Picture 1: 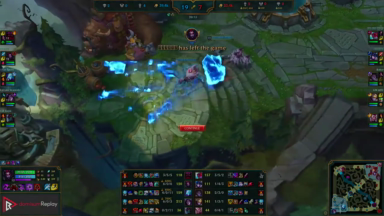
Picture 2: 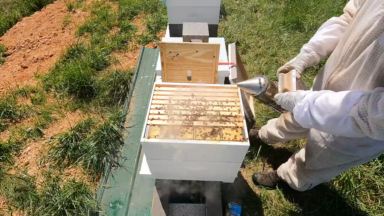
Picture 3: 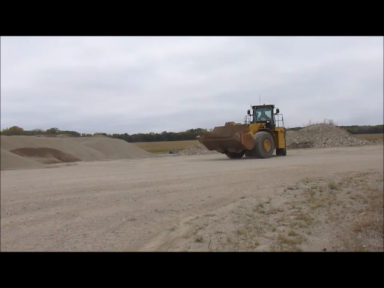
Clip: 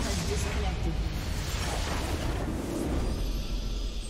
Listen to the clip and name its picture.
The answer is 1